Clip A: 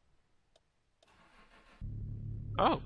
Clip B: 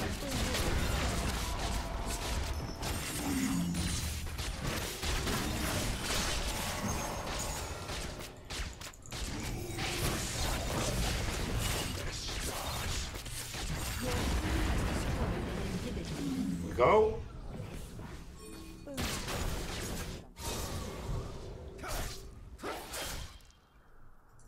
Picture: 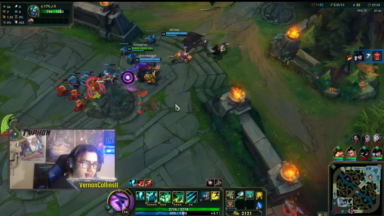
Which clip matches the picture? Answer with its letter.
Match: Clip B